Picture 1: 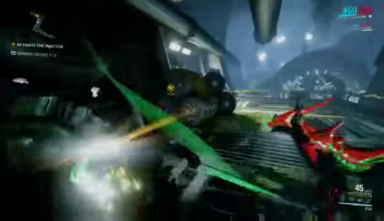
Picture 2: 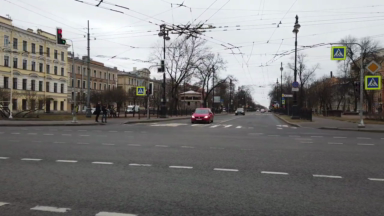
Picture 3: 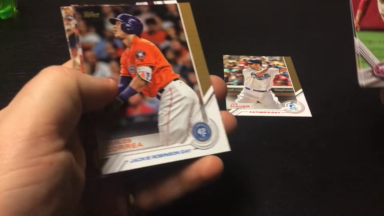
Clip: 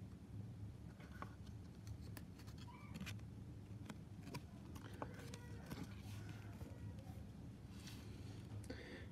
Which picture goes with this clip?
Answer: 3